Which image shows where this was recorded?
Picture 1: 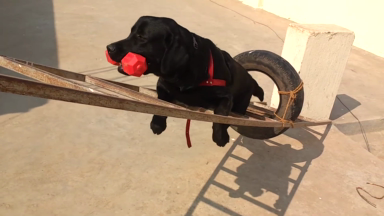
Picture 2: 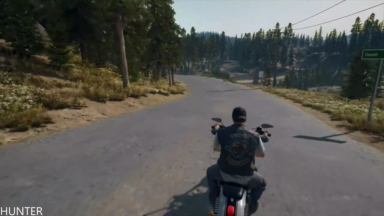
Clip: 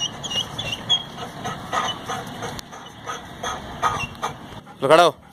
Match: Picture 1